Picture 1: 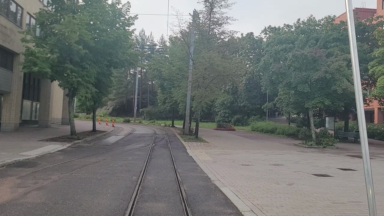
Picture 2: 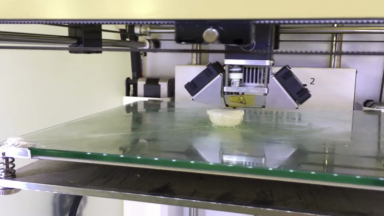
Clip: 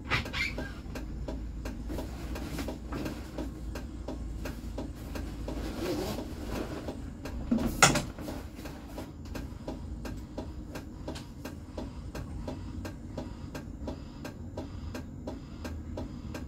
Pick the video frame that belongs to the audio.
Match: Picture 1